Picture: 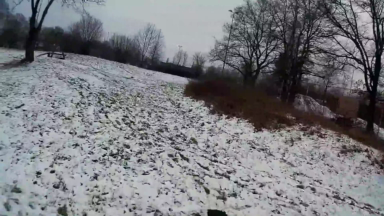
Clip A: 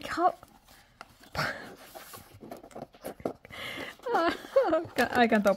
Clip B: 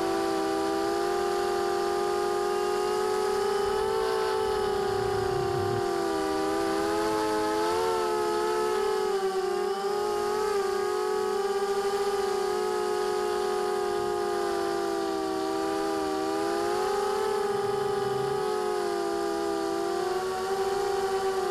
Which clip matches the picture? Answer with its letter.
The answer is B